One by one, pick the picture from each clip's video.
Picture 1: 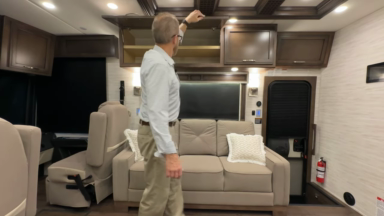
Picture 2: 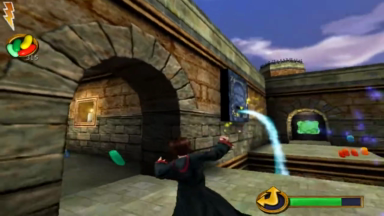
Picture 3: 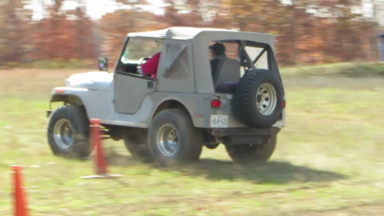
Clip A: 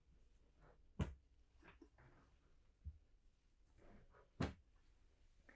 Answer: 1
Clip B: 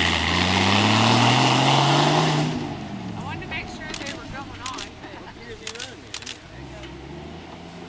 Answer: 3